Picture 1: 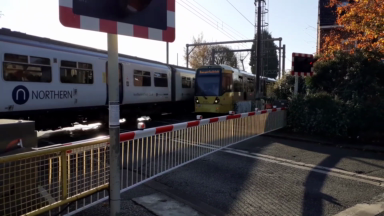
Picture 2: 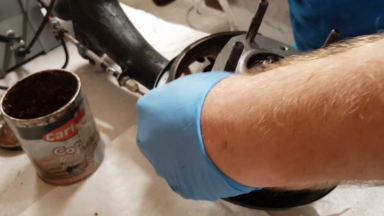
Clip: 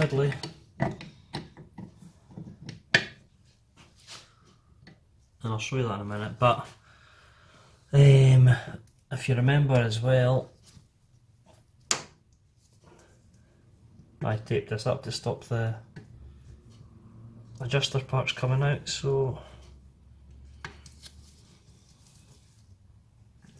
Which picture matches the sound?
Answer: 2